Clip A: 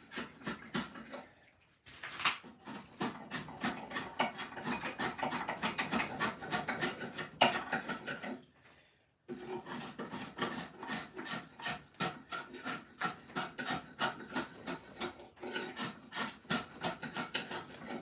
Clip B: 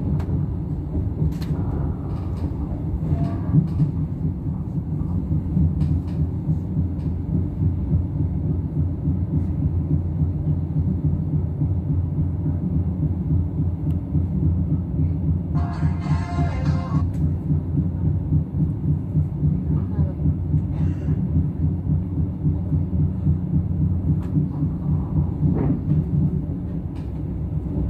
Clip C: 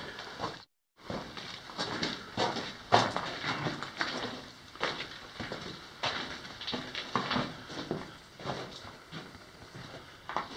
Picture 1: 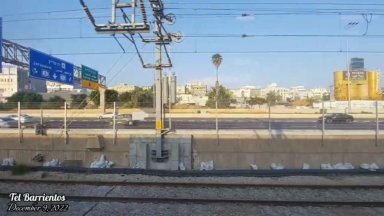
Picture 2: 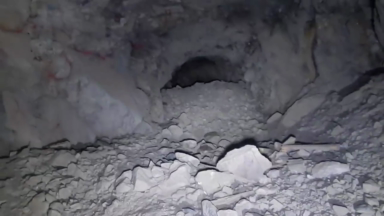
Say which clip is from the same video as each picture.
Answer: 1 B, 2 C